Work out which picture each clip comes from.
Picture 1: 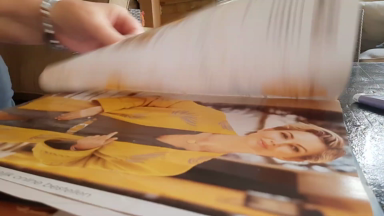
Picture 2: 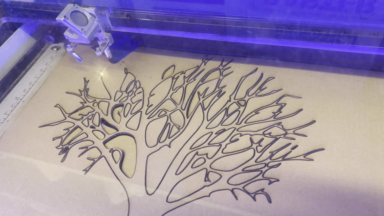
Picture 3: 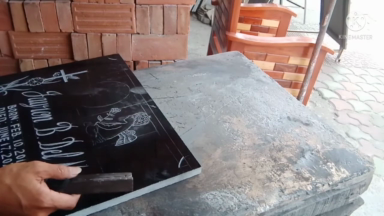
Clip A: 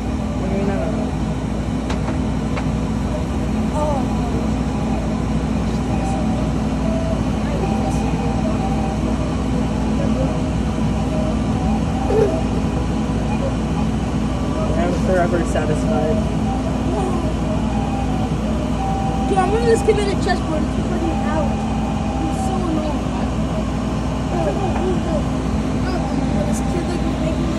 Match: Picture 2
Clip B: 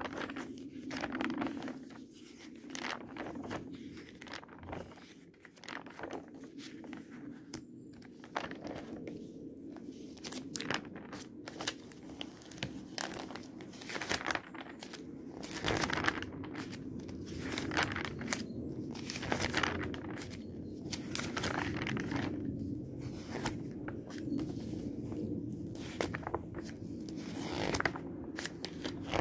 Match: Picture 1